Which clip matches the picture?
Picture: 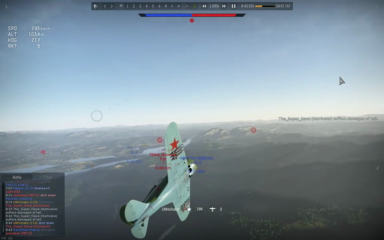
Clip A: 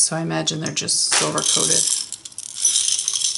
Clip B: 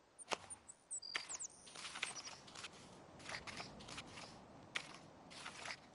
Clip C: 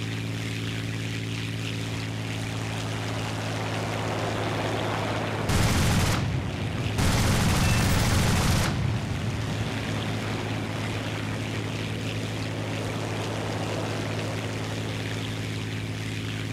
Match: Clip C